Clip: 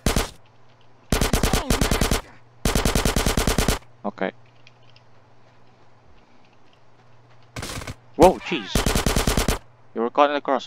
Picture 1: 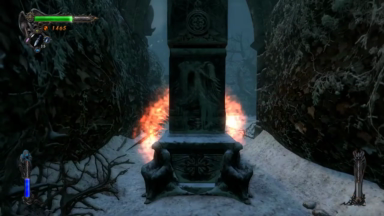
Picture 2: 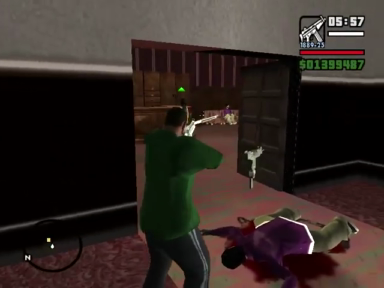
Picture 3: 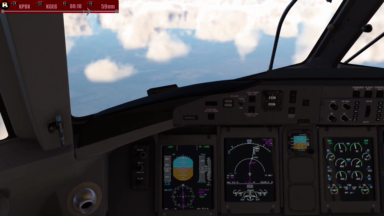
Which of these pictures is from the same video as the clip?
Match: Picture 2